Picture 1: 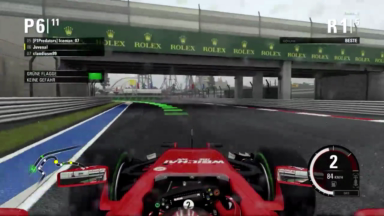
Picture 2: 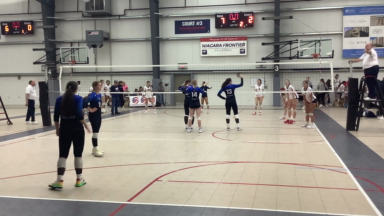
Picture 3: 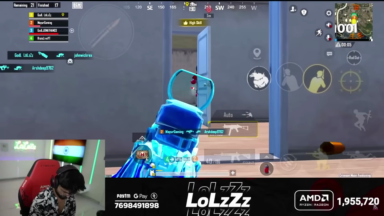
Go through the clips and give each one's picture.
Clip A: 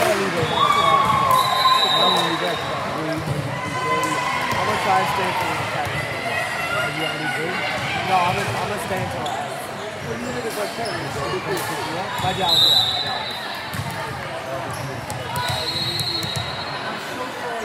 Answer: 2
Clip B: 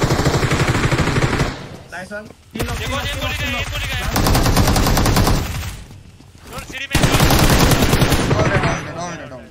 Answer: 3